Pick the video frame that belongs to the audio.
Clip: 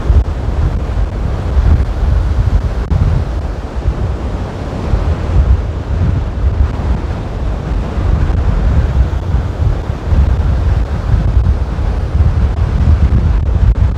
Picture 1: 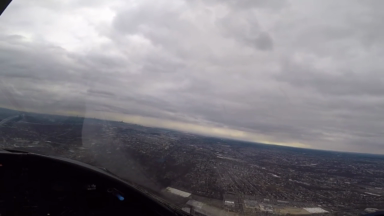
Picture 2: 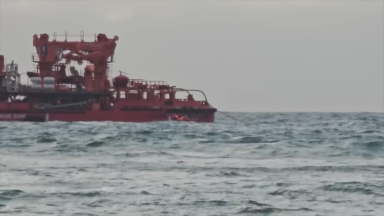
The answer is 2